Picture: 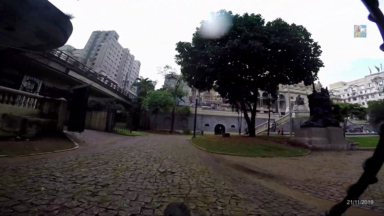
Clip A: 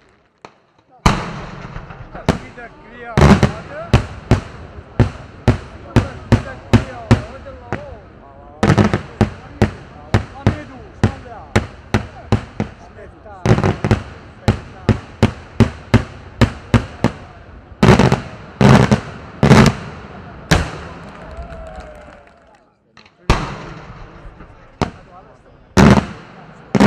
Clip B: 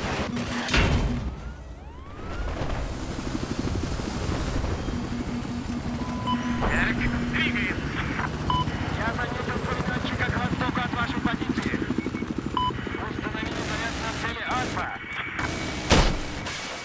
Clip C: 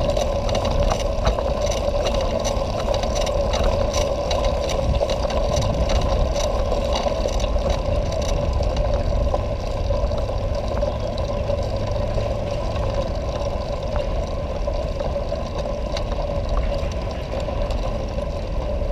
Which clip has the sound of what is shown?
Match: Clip C